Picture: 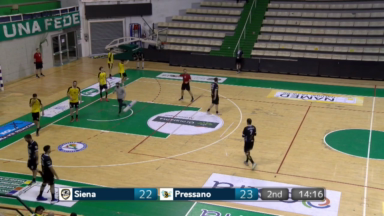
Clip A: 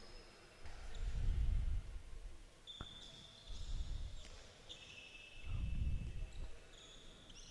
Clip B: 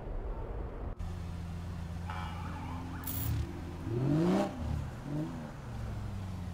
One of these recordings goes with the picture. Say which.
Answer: A